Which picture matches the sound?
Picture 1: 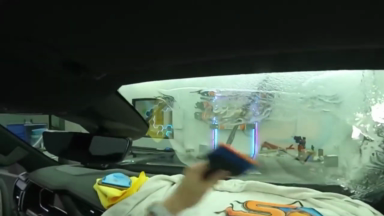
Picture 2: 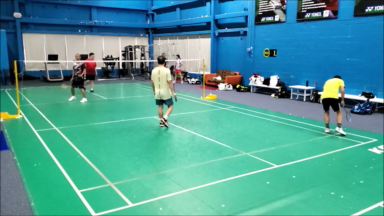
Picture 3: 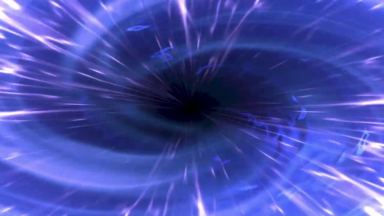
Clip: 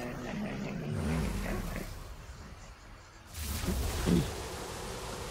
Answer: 3